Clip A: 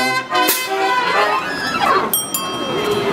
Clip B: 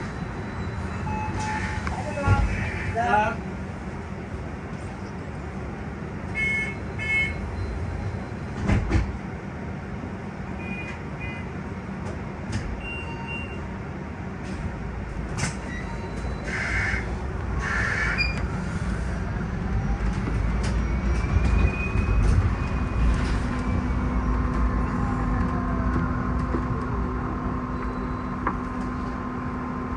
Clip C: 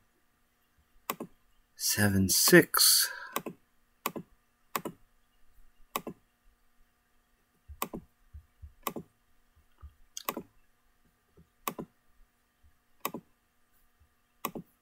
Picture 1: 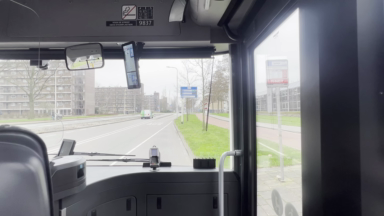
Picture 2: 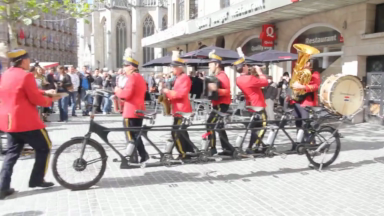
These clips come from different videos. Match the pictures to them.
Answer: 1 B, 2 A